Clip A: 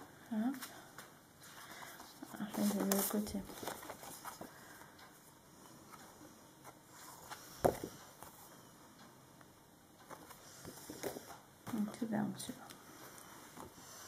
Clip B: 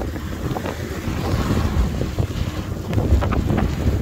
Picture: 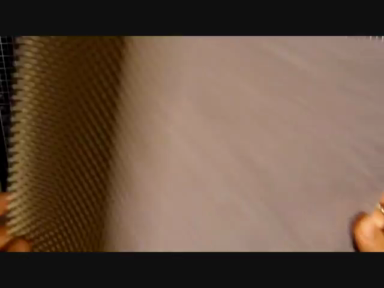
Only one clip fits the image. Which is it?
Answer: A